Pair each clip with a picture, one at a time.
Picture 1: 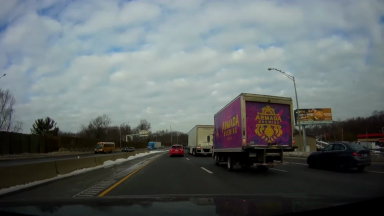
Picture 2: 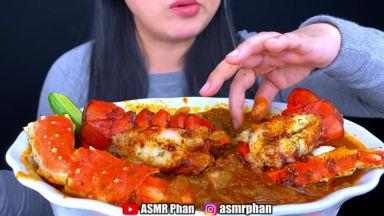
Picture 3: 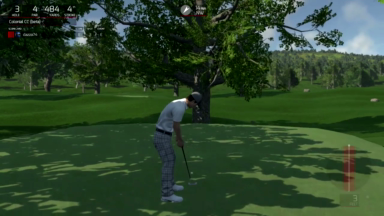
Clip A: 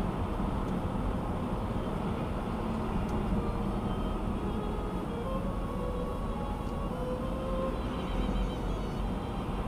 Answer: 1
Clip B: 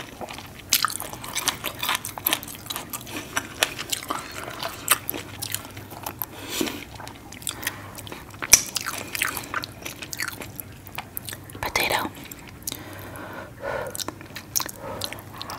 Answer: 2